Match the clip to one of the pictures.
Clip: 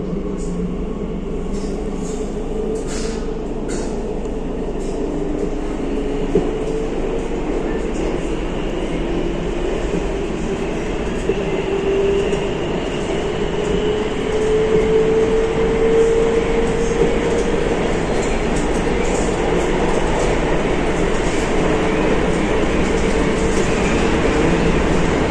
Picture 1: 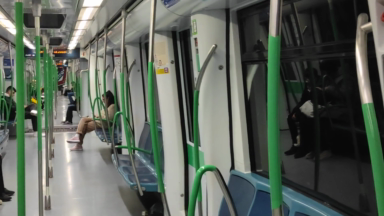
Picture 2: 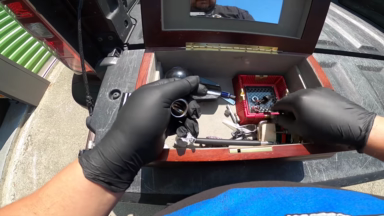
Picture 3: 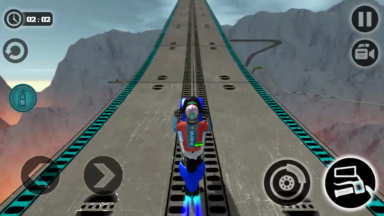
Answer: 1